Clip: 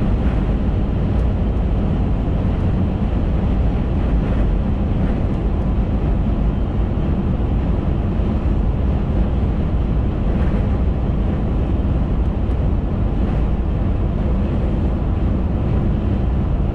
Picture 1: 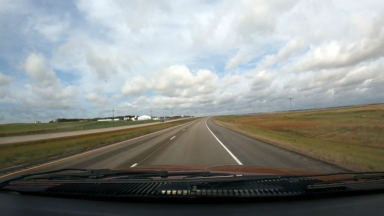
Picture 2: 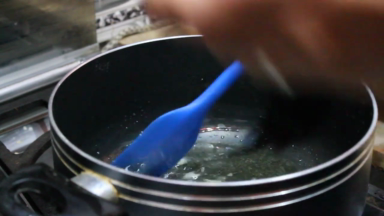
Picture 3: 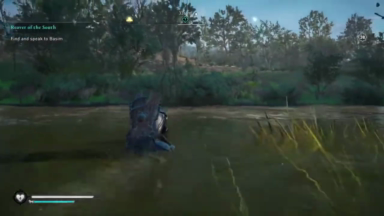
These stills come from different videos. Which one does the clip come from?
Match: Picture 1